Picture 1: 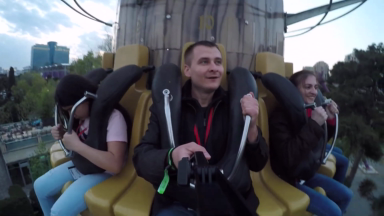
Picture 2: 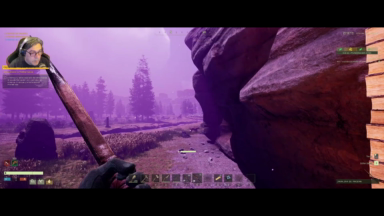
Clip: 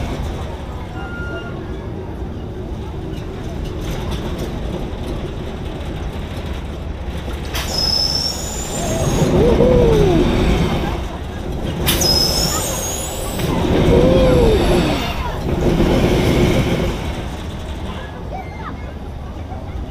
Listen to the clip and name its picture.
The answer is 1